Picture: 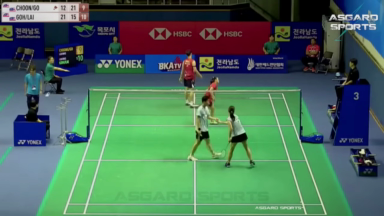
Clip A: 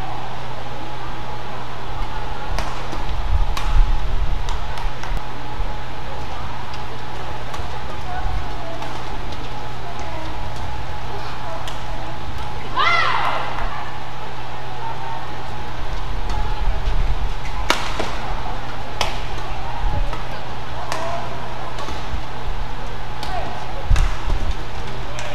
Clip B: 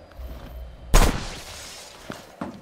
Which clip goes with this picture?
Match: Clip A